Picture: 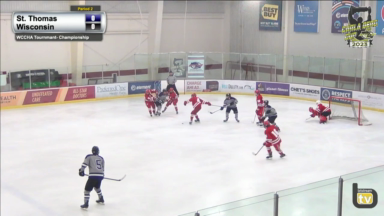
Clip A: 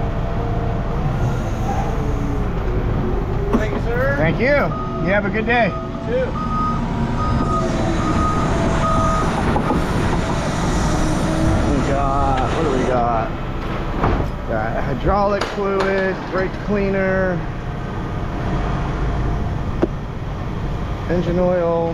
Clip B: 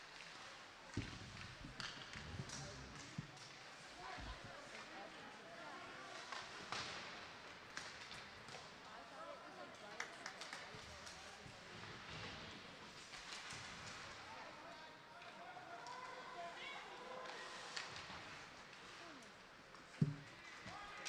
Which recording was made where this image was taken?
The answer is B